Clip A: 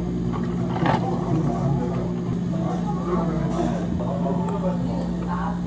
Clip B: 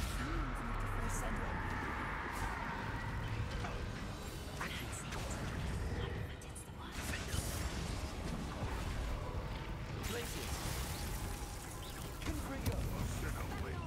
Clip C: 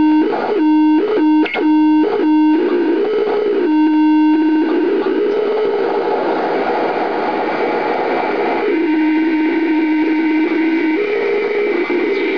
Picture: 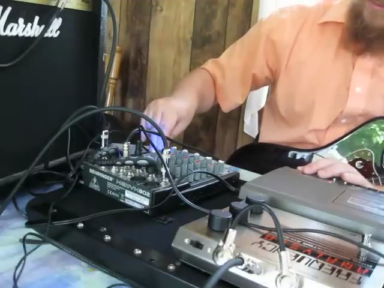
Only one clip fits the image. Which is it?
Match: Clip C